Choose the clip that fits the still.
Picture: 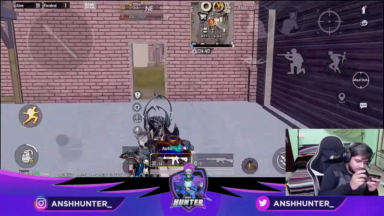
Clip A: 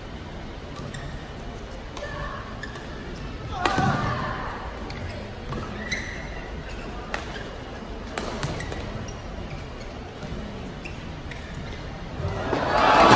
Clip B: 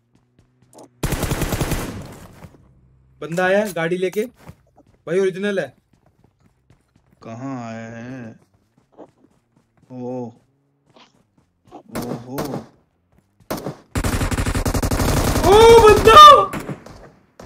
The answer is B